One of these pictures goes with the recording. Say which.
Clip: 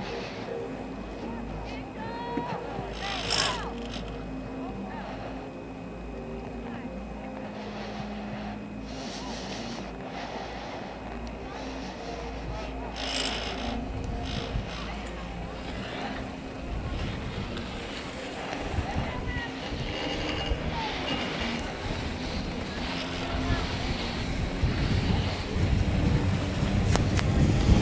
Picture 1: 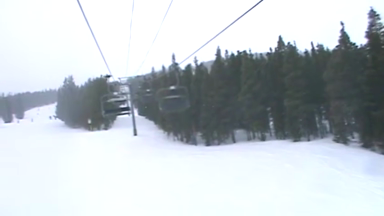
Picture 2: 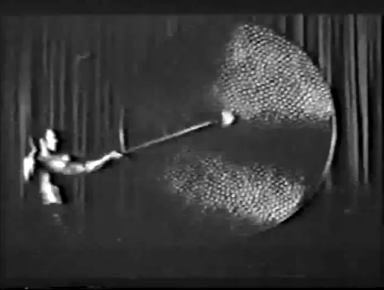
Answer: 1